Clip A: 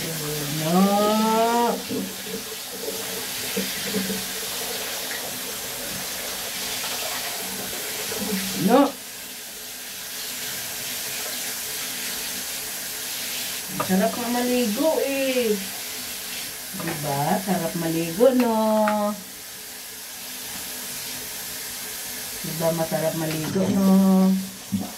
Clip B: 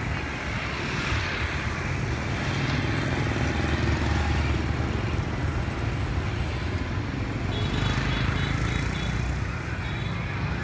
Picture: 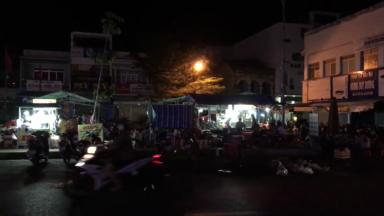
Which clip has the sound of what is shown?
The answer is B